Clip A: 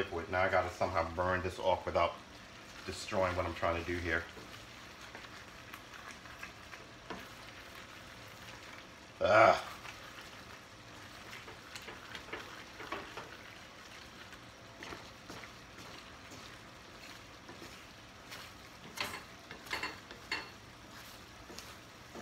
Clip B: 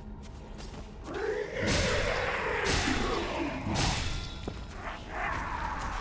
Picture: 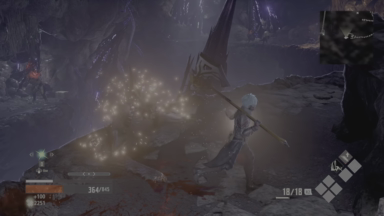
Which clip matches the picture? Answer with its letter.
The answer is B